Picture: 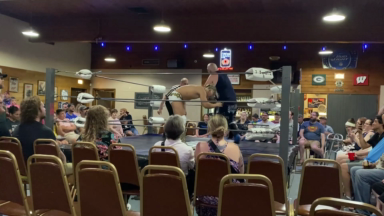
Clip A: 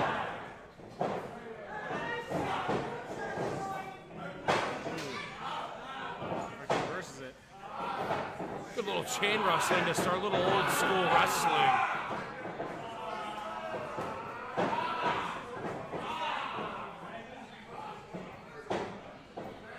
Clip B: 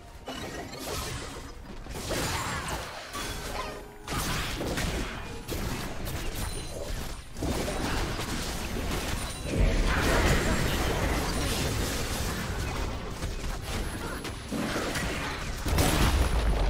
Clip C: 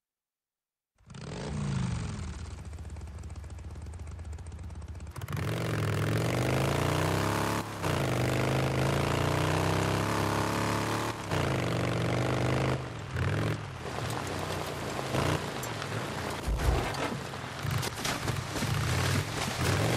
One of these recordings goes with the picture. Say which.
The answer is A